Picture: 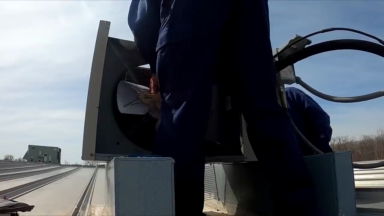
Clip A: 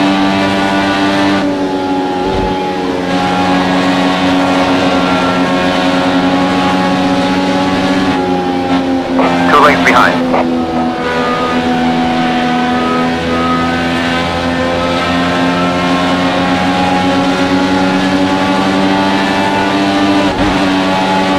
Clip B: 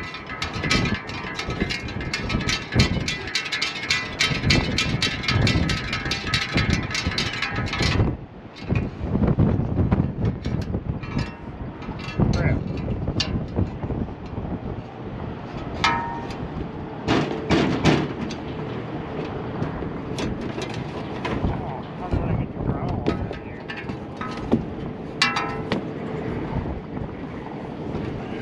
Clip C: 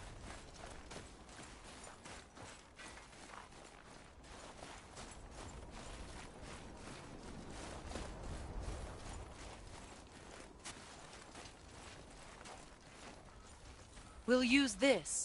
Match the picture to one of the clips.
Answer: B